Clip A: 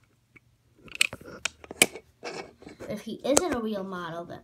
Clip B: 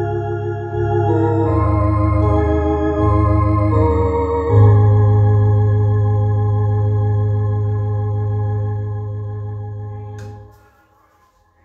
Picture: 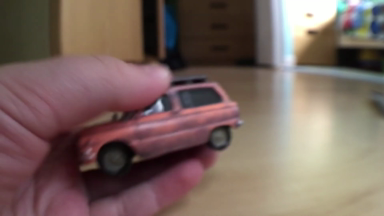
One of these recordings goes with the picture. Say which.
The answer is A